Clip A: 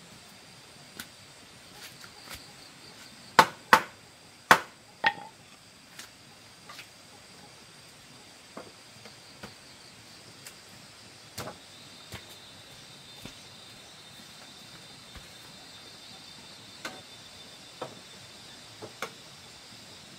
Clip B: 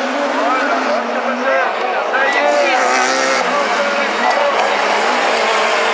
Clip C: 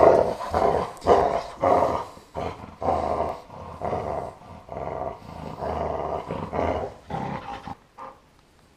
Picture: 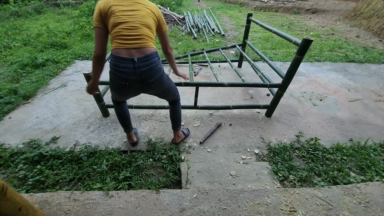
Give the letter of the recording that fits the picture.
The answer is A